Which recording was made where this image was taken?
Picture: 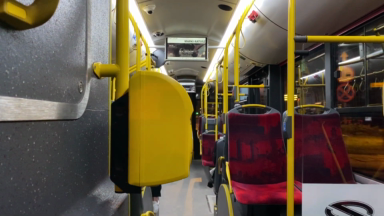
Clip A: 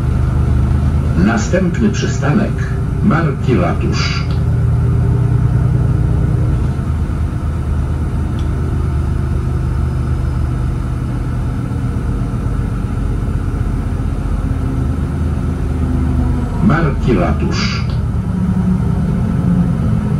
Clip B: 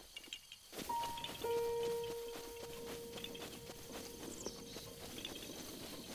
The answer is A